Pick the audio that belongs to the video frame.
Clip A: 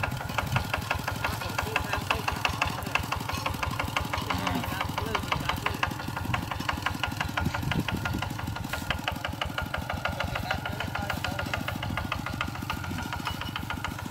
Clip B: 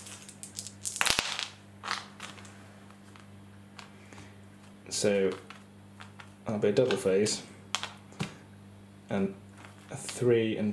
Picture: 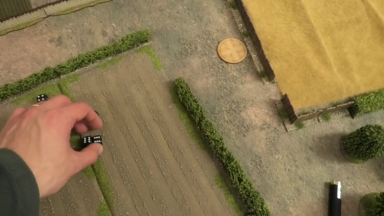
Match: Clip B